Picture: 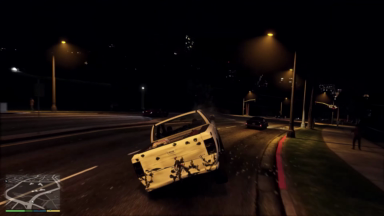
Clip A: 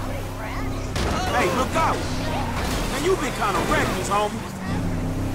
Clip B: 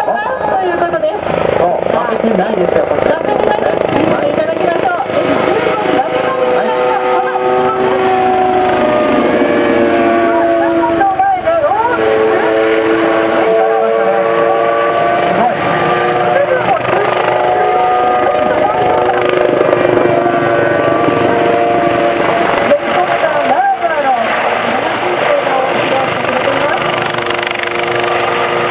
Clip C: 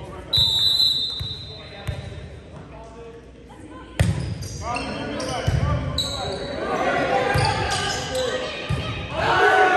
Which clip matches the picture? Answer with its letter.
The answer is A